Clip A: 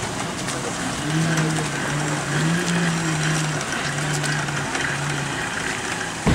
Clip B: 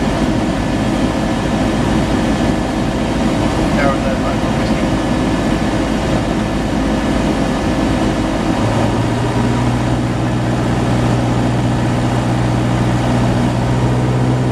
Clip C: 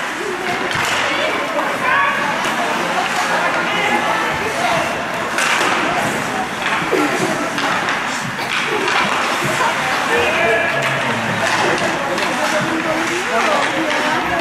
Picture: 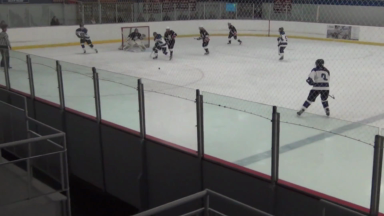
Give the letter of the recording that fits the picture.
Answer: C